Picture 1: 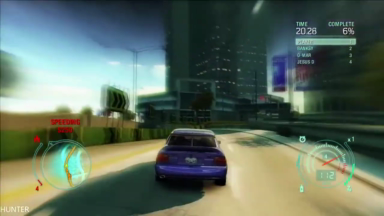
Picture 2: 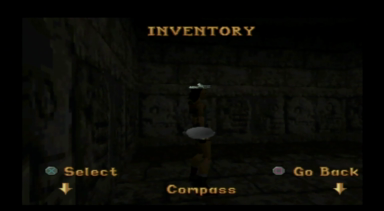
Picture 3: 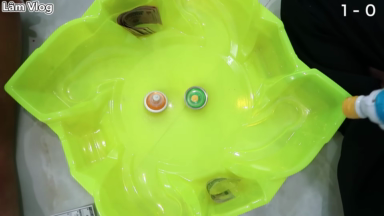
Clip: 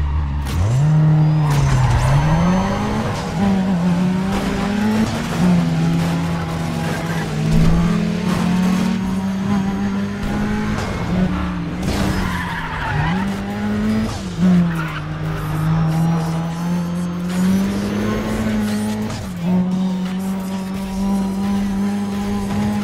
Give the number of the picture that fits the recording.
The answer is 1